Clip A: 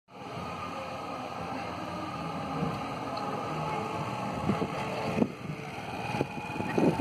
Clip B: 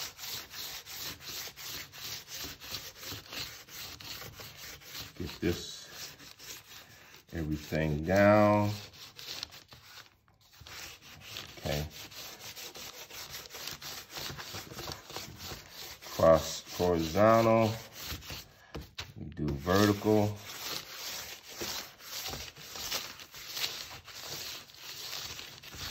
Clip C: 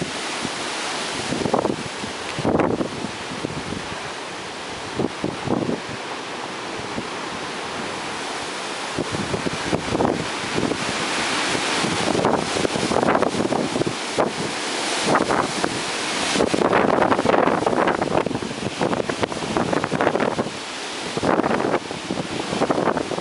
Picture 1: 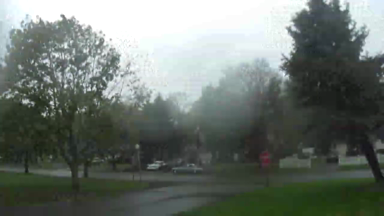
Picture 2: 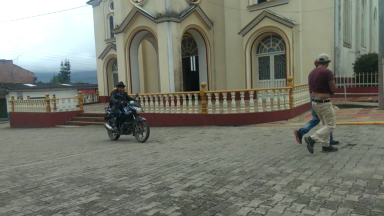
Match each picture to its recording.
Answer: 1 C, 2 A